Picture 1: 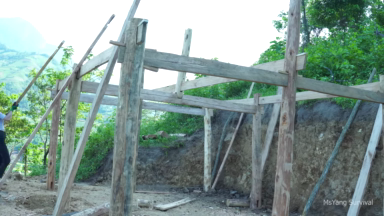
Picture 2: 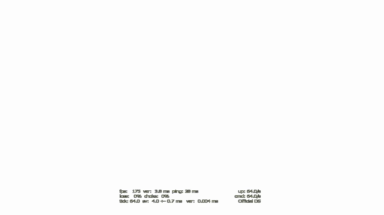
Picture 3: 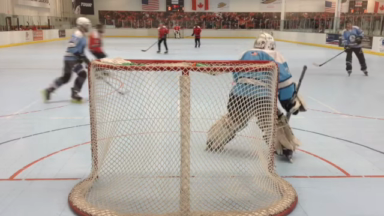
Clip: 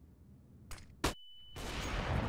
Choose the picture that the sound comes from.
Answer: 2